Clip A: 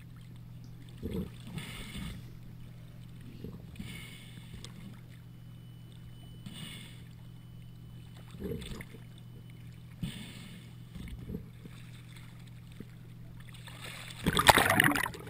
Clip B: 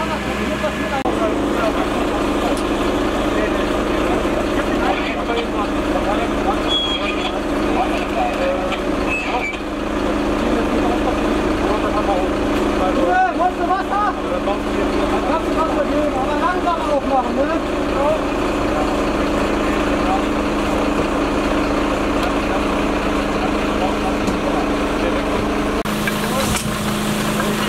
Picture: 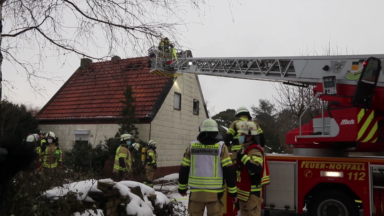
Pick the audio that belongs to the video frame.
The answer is B